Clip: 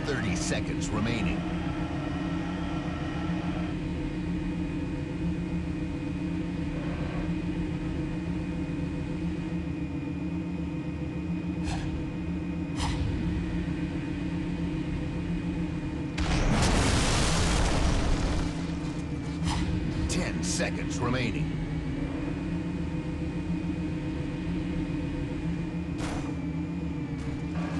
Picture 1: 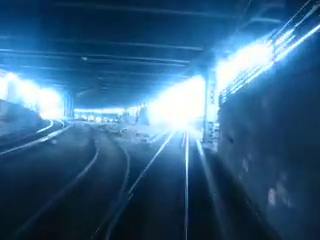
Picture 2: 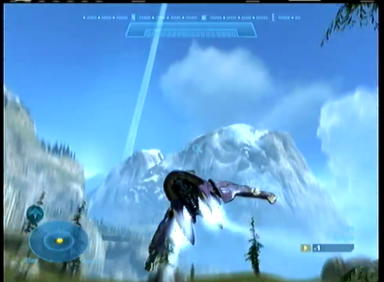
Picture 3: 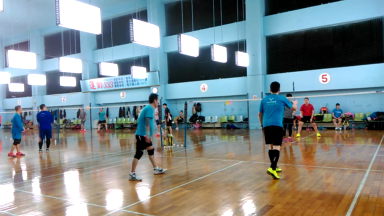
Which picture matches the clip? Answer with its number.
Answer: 2